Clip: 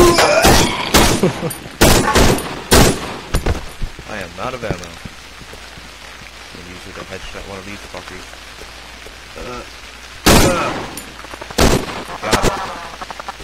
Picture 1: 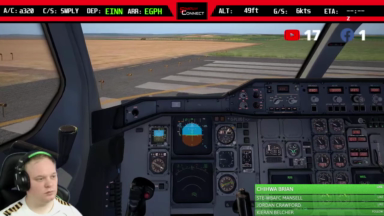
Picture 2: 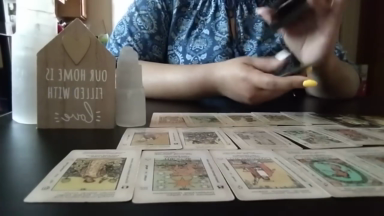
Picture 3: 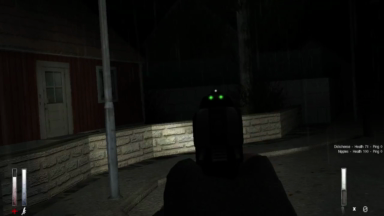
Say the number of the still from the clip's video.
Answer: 3